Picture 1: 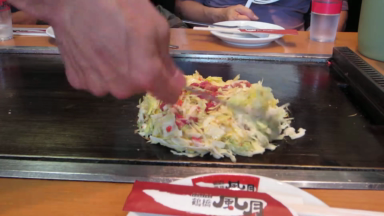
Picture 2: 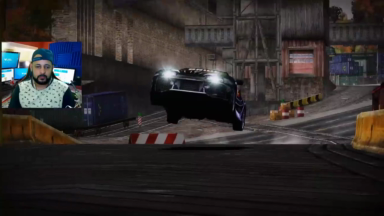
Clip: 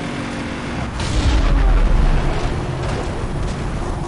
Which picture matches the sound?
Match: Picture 2